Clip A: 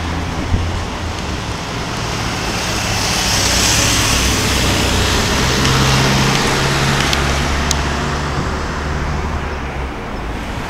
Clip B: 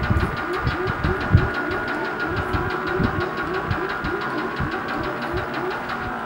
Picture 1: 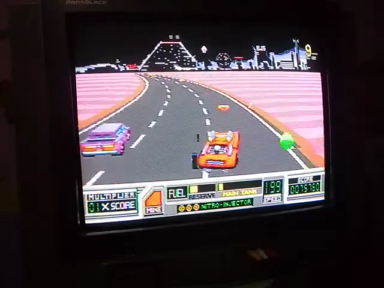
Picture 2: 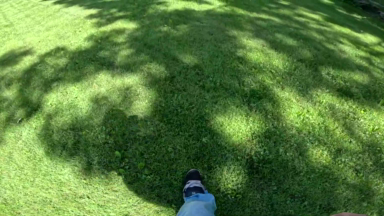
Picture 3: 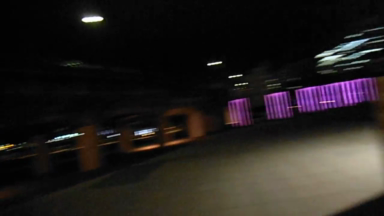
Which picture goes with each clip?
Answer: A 3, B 1